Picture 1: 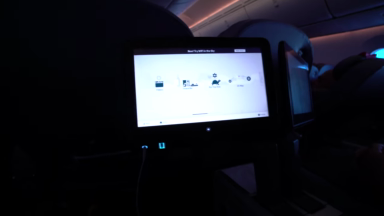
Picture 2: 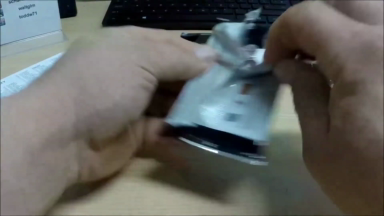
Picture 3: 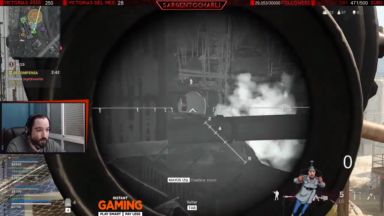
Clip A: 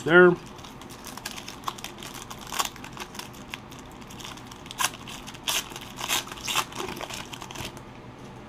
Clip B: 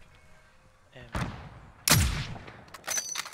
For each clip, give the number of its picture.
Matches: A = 2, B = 3